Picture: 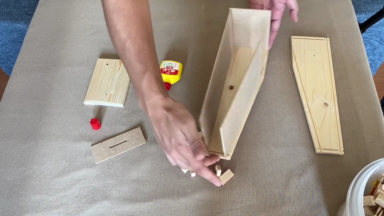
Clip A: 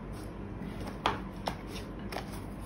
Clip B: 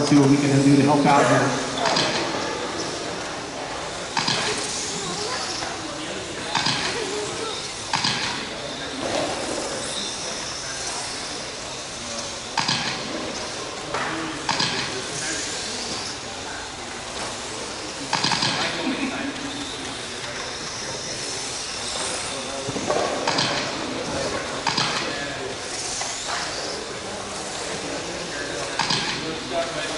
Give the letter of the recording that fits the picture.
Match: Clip A